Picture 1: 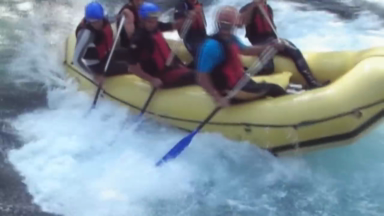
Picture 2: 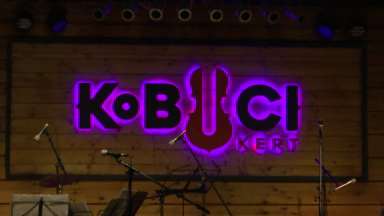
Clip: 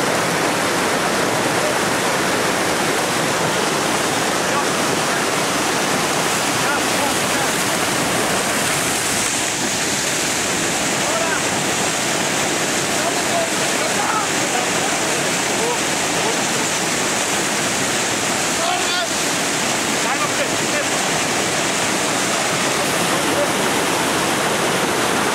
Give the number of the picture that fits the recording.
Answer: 1